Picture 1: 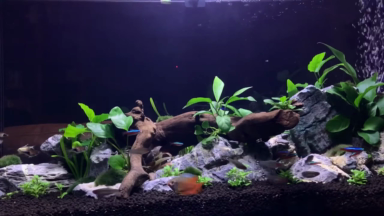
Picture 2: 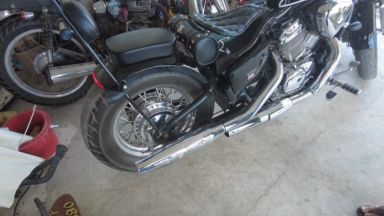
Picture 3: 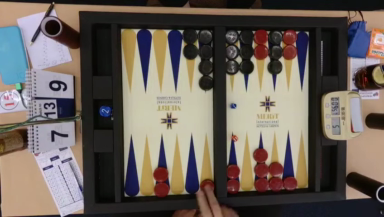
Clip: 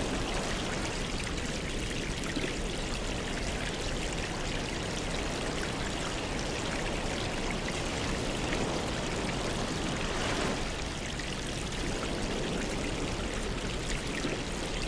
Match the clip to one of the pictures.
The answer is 1